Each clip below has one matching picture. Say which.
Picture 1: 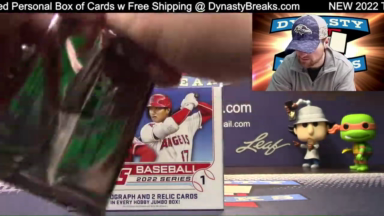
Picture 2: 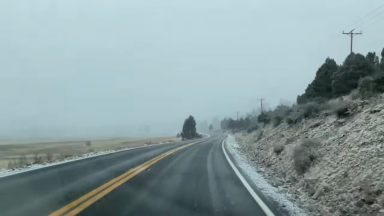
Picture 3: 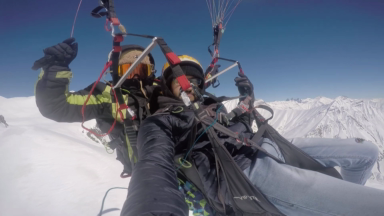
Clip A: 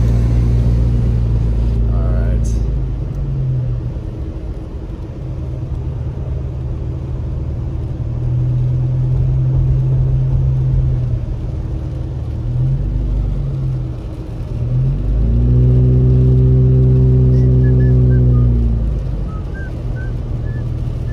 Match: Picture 2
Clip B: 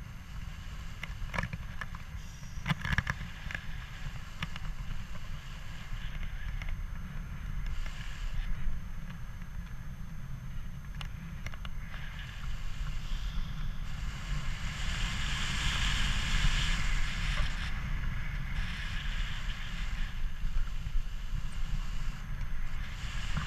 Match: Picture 3